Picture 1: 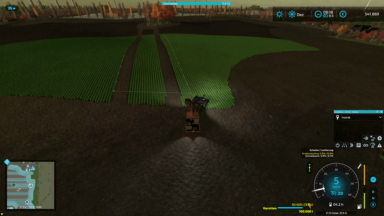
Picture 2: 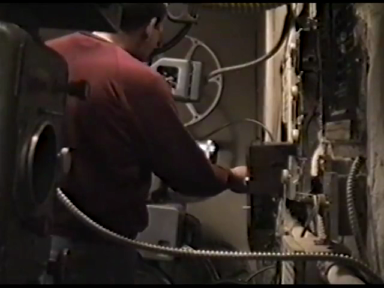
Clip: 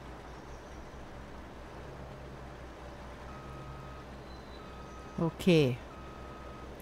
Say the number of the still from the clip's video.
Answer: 1